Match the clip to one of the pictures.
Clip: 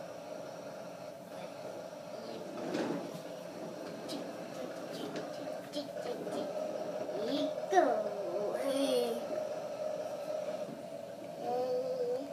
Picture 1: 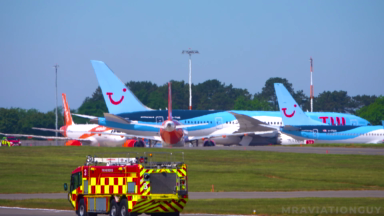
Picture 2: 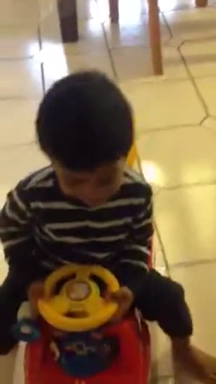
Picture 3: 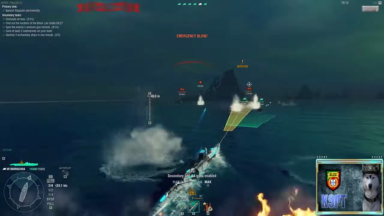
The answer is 2